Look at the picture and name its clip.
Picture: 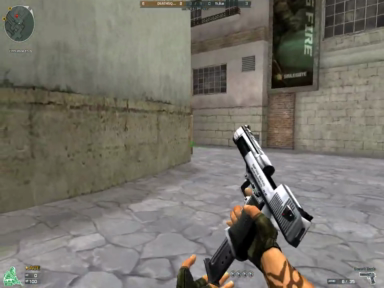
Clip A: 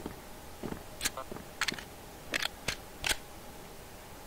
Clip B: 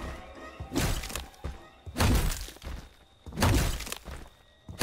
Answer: A